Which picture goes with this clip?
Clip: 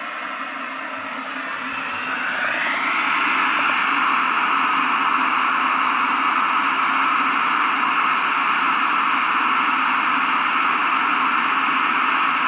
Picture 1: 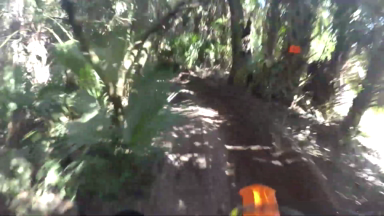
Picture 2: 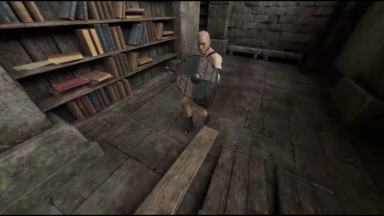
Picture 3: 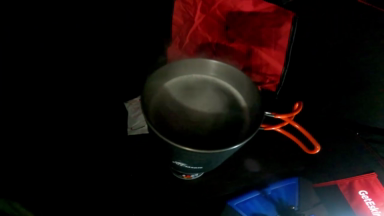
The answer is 3